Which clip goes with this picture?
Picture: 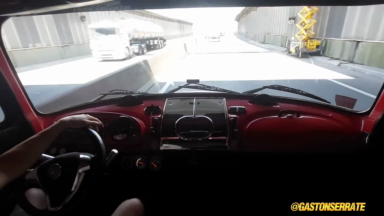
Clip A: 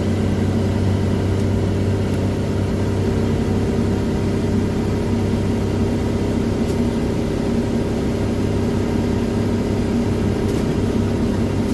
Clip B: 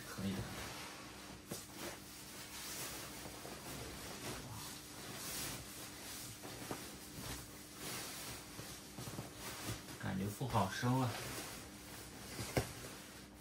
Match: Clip A